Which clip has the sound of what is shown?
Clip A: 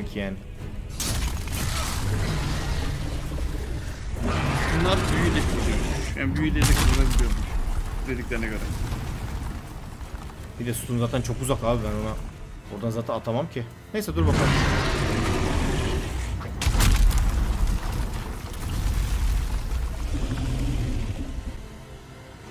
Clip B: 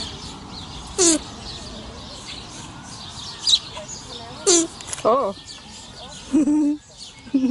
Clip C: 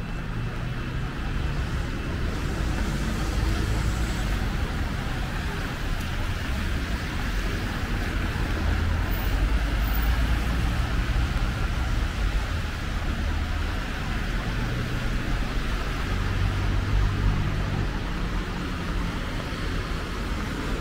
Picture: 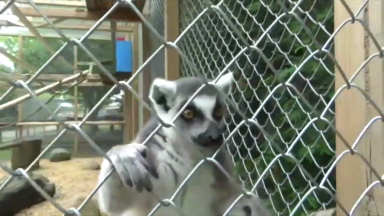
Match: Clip B